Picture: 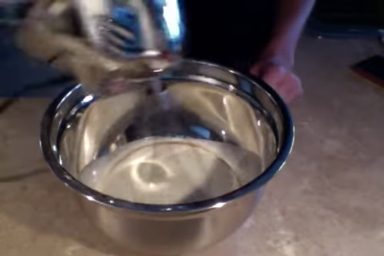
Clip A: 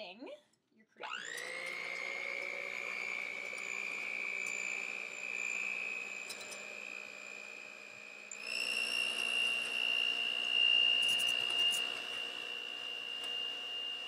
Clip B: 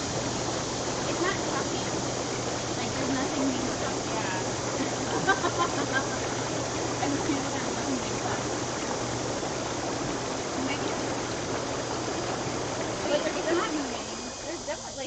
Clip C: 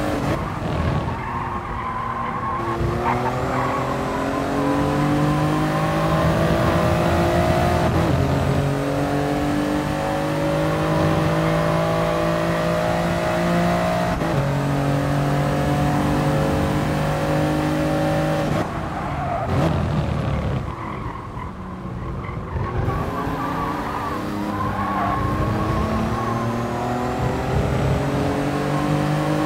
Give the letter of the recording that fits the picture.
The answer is A